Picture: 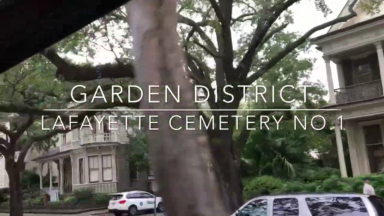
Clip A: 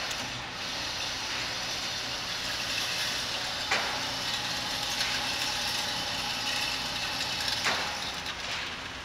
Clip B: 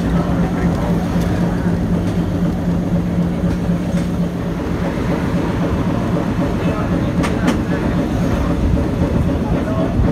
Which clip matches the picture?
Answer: B